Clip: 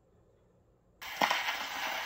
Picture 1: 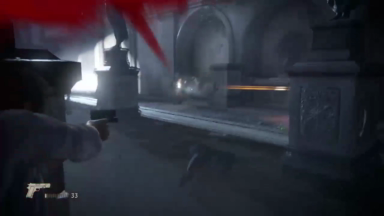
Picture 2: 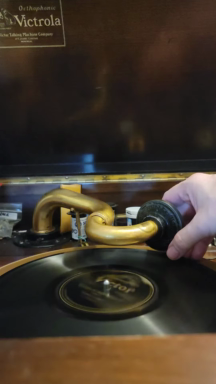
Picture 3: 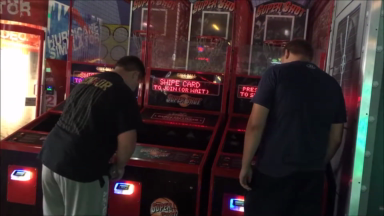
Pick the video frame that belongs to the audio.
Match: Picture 2